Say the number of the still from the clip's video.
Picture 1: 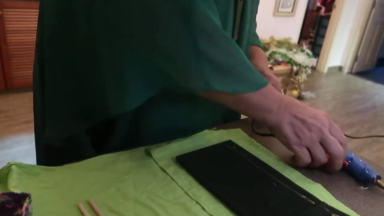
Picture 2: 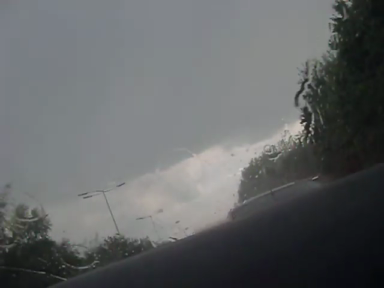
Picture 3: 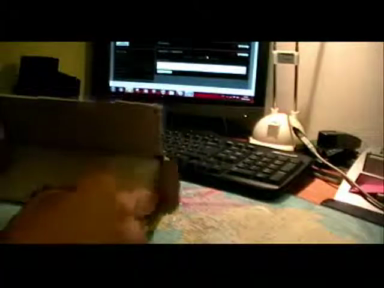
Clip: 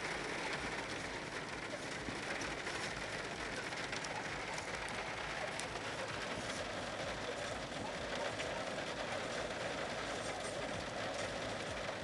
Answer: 2